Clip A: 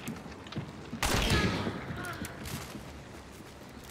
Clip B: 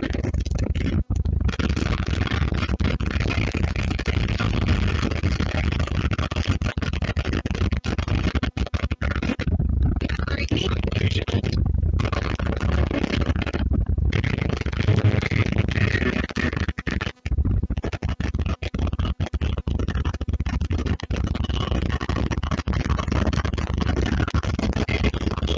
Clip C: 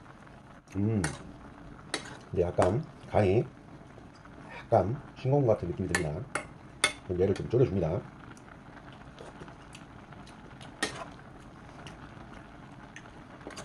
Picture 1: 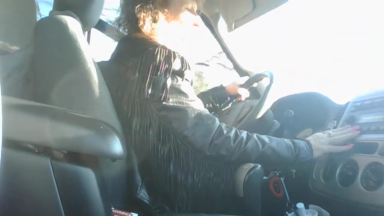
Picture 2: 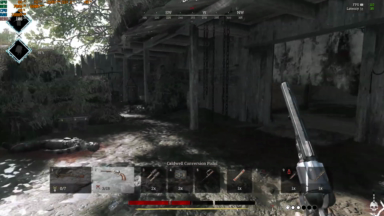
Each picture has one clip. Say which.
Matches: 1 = B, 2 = A